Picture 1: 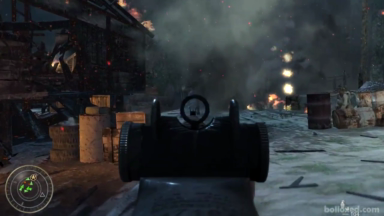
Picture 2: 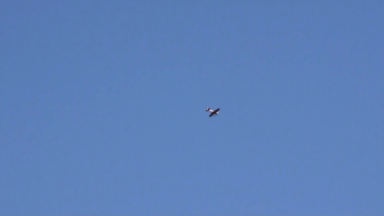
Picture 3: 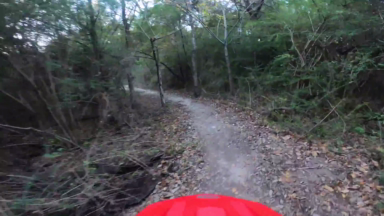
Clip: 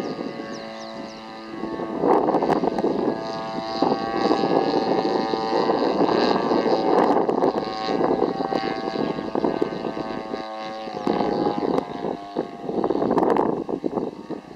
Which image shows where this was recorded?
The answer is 2